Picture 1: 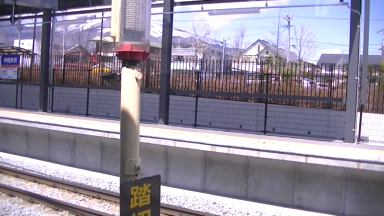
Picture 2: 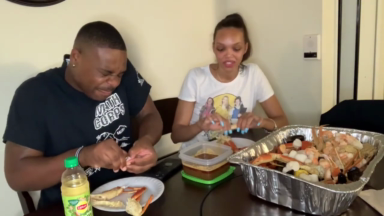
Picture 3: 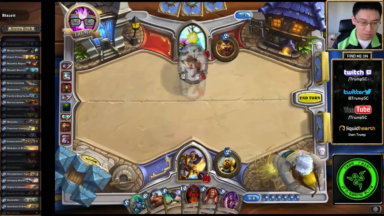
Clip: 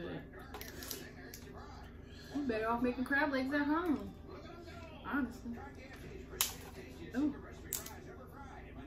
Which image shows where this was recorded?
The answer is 2